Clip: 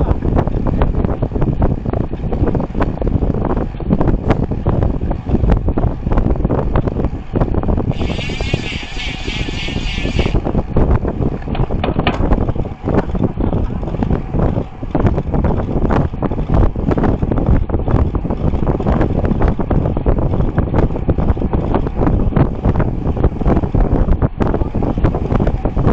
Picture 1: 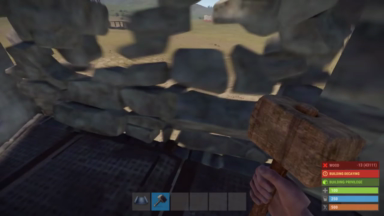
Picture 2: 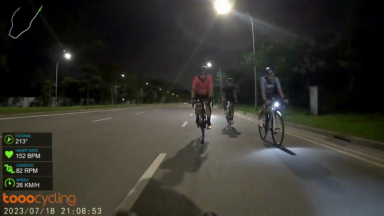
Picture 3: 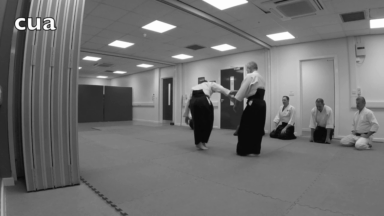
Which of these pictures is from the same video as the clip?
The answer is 2